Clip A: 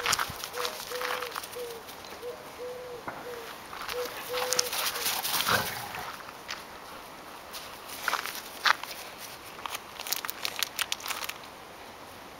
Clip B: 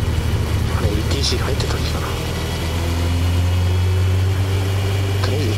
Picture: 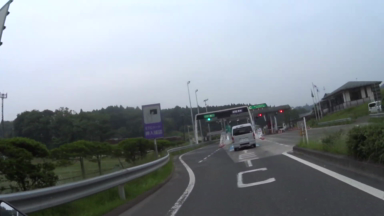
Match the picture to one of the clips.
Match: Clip B